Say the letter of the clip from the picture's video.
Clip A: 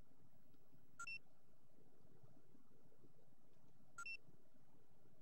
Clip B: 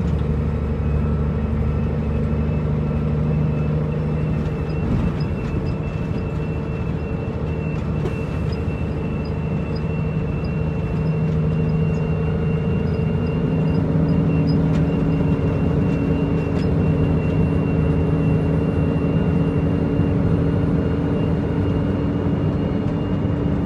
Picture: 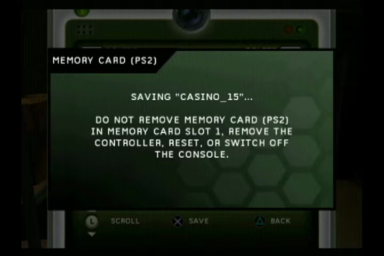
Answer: A